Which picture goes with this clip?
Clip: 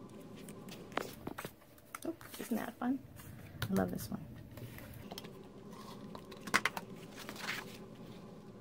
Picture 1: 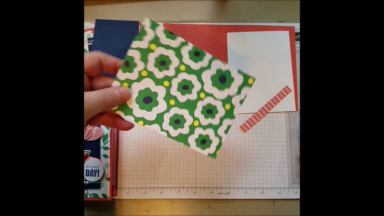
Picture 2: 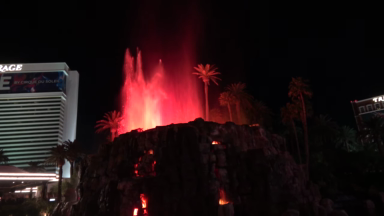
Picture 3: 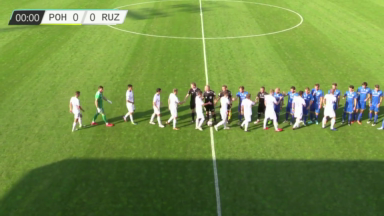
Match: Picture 1